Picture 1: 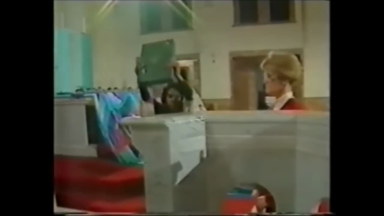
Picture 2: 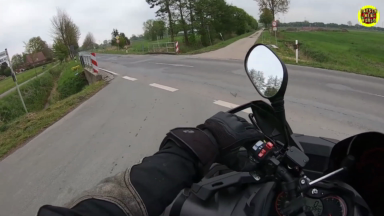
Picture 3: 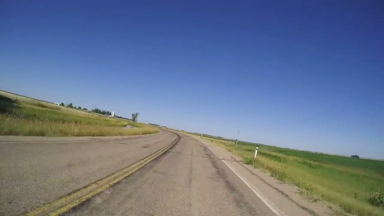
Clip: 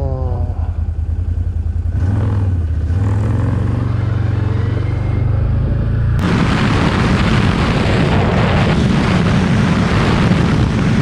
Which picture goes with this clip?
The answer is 2